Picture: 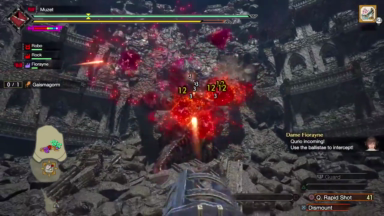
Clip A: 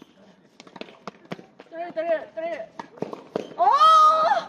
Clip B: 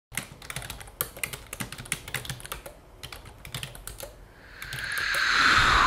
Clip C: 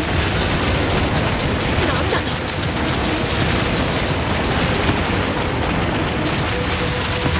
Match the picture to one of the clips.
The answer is C